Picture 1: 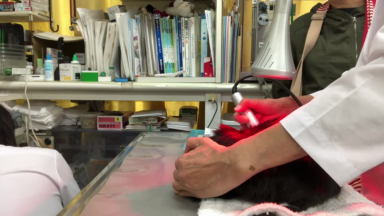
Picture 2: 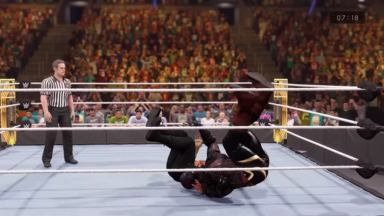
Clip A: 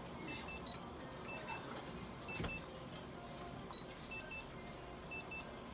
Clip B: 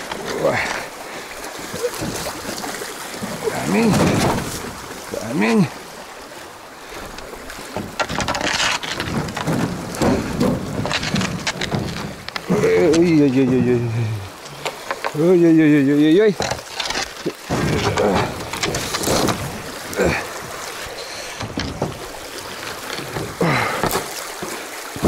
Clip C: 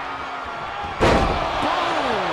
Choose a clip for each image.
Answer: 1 A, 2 C